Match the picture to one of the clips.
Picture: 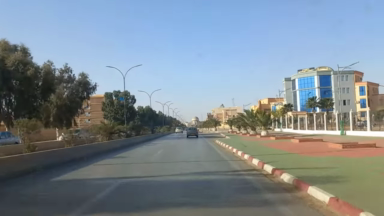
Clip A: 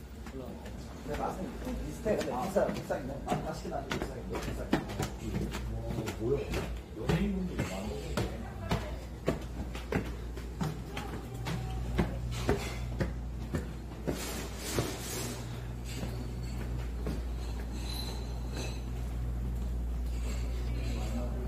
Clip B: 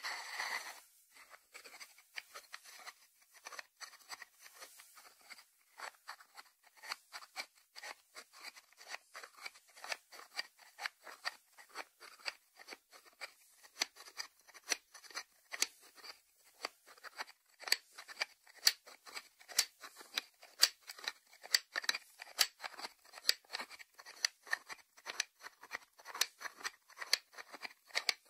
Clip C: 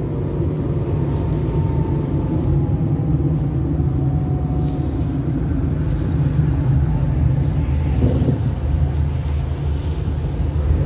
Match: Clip C